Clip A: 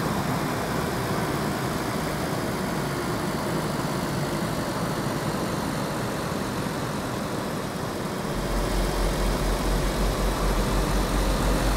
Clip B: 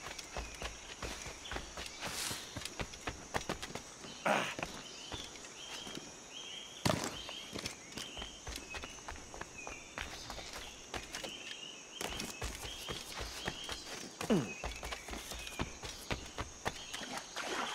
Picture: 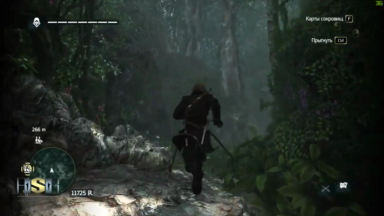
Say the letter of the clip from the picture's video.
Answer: B